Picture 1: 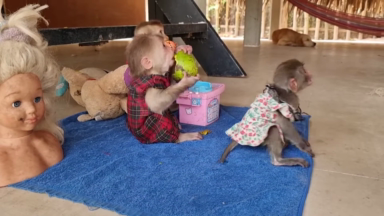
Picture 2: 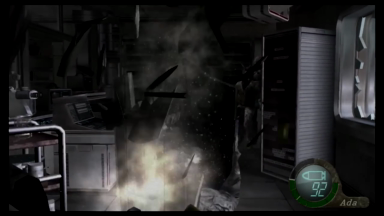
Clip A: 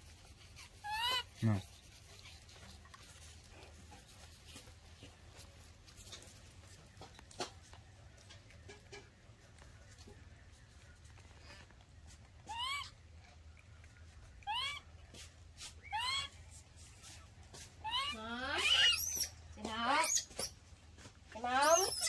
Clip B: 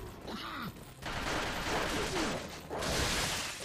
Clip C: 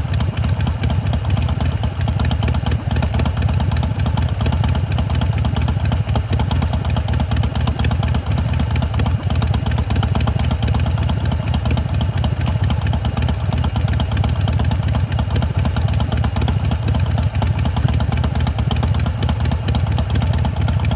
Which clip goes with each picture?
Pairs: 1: A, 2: B